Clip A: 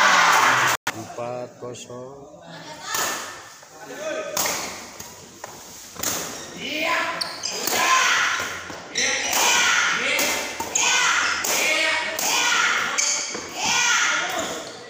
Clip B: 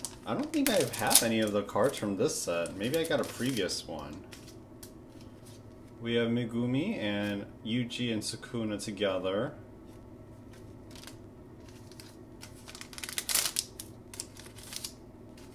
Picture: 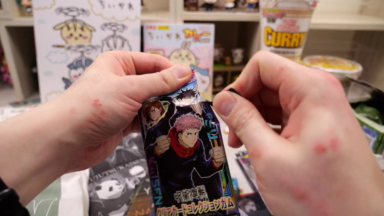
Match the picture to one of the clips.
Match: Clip B